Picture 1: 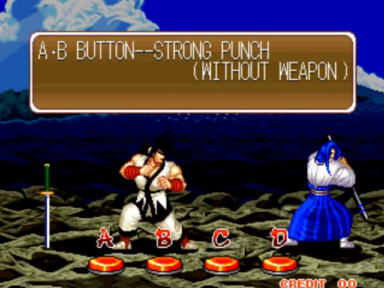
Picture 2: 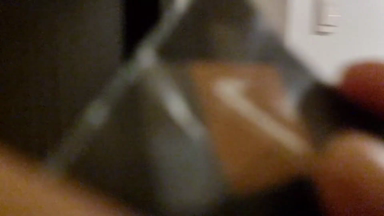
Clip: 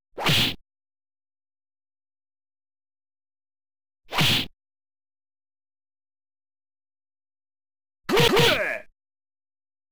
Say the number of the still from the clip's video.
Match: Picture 1